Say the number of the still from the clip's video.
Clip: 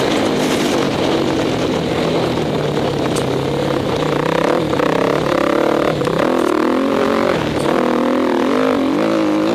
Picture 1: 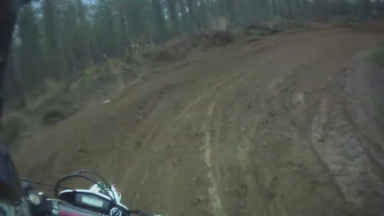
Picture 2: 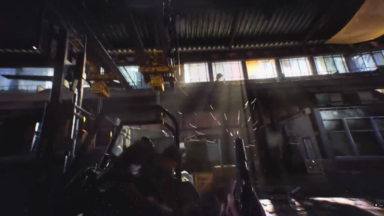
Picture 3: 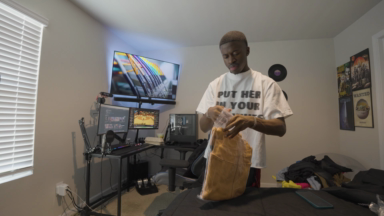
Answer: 1